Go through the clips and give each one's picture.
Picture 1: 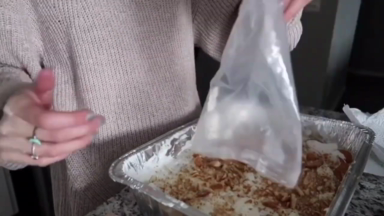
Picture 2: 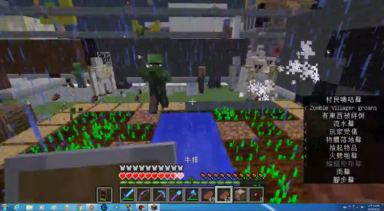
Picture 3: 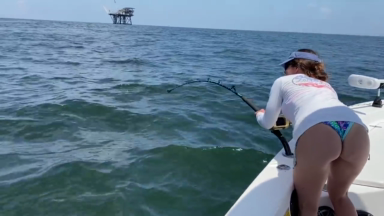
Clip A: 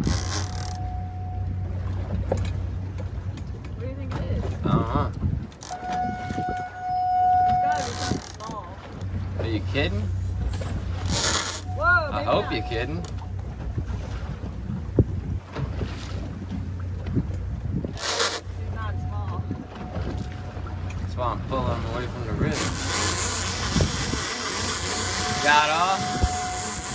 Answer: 3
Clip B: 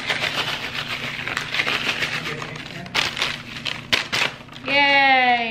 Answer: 1